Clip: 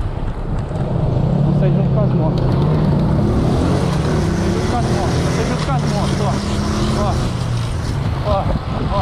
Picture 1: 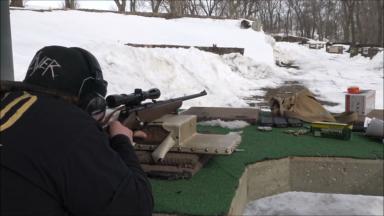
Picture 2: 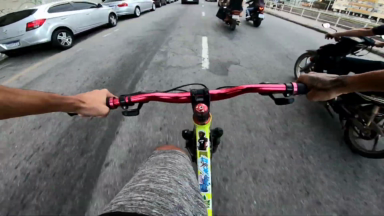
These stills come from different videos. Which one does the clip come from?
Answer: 2